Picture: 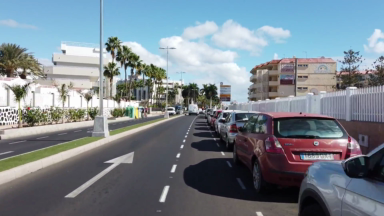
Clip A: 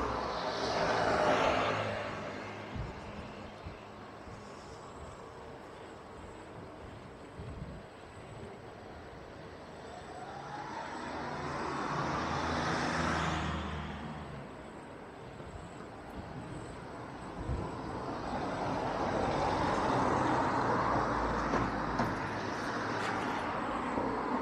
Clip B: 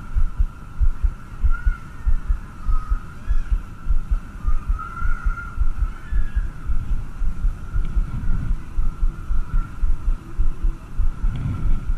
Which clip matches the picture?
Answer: A